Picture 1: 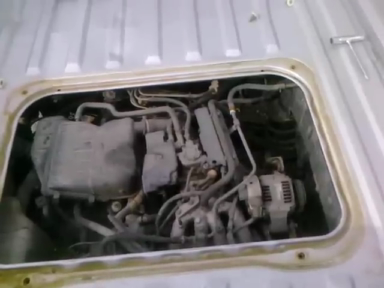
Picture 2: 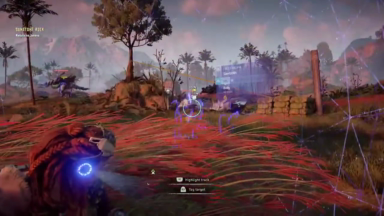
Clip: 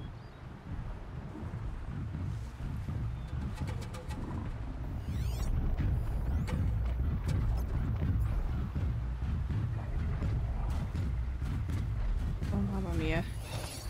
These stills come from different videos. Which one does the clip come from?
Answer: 2